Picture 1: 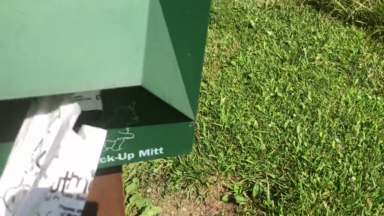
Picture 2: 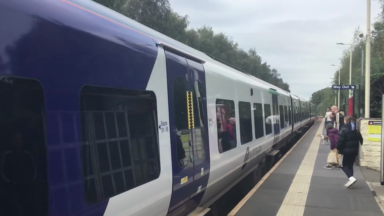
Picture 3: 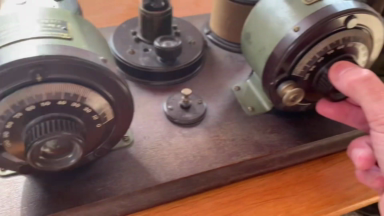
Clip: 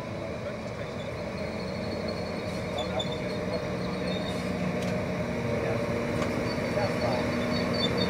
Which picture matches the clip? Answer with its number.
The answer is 2